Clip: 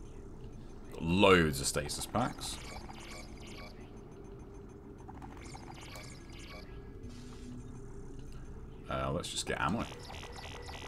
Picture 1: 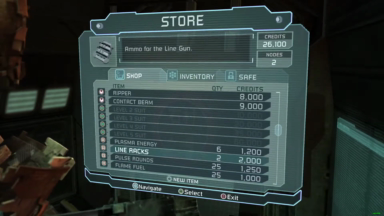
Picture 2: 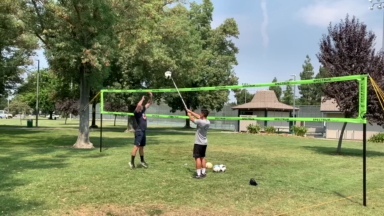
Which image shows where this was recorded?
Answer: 1